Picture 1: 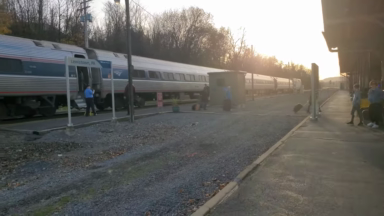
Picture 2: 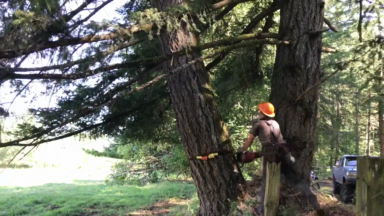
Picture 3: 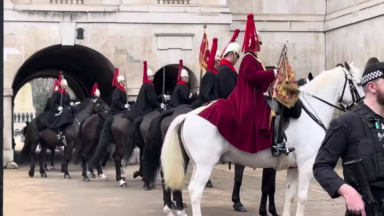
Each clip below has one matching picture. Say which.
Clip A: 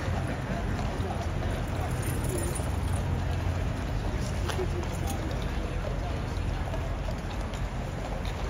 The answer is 3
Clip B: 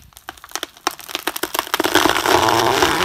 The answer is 2